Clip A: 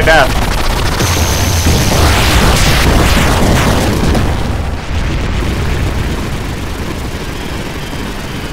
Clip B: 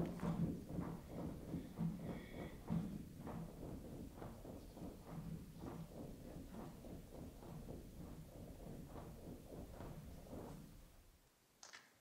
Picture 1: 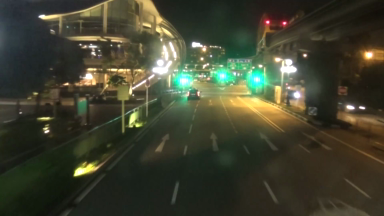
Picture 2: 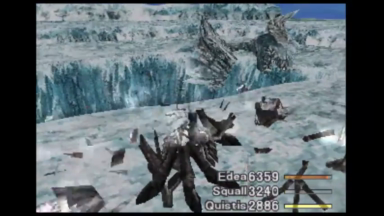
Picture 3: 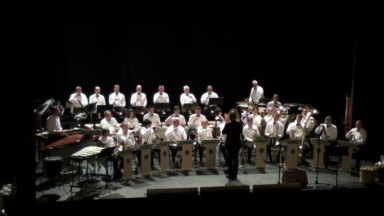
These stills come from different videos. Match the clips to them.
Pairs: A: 2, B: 3